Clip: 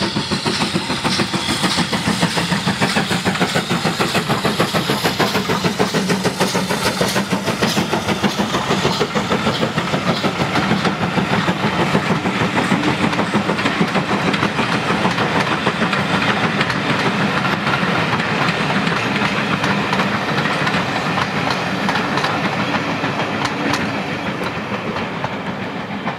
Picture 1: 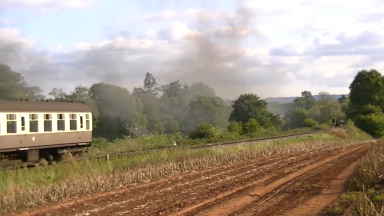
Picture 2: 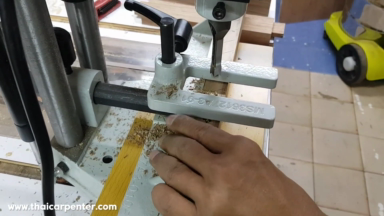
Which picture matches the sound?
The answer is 1